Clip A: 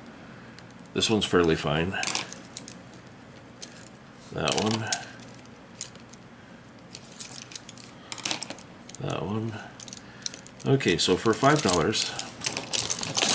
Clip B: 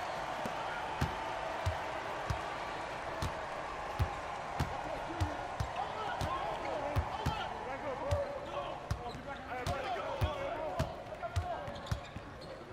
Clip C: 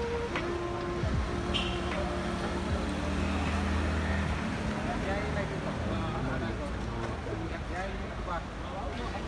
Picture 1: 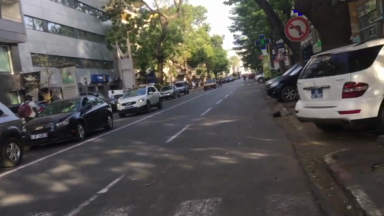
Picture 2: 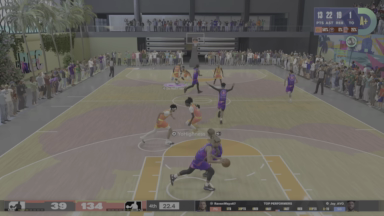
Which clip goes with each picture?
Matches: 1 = C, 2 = B